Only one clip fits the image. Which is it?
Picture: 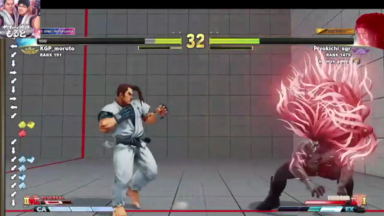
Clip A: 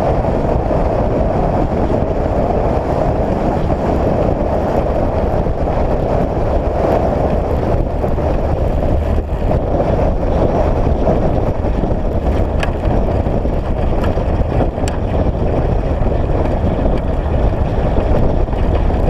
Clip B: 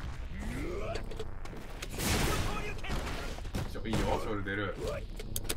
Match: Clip B